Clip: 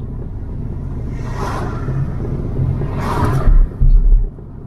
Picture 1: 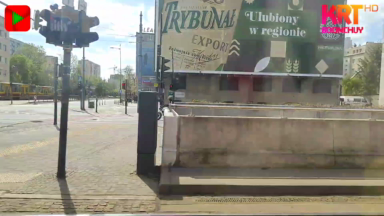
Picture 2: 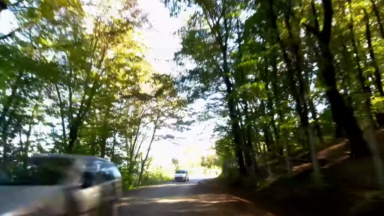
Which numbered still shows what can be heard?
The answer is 2